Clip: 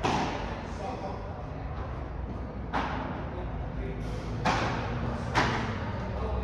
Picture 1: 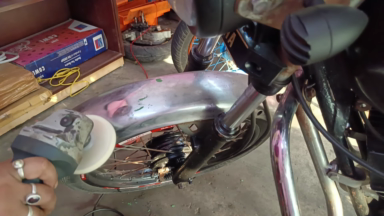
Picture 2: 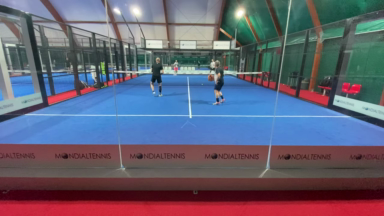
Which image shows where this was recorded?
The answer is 2